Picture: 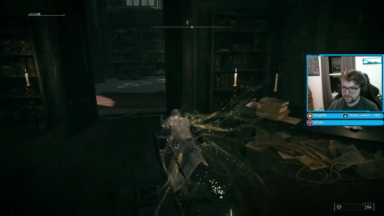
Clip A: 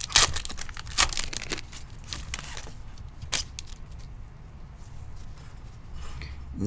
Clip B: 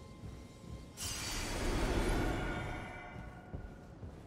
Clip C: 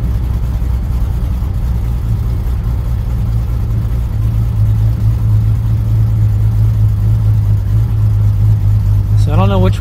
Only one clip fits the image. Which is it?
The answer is B